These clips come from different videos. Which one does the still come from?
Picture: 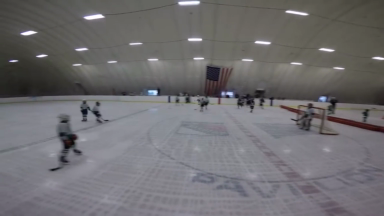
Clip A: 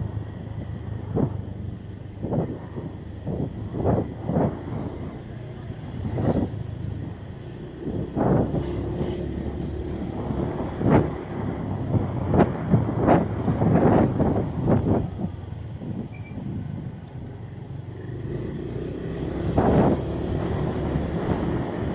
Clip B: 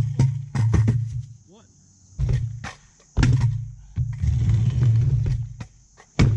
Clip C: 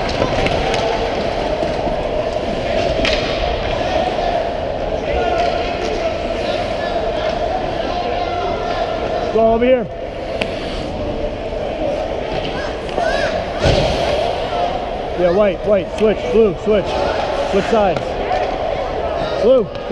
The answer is C